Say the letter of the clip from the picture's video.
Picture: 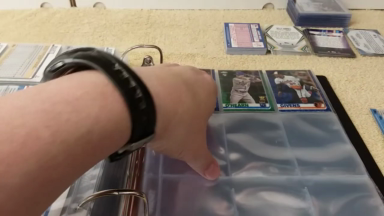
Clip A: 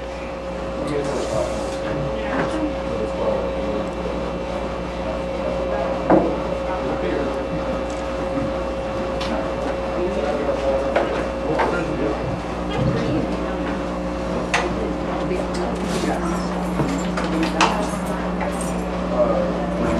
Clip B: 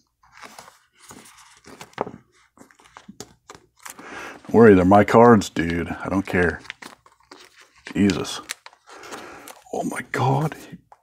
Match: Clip B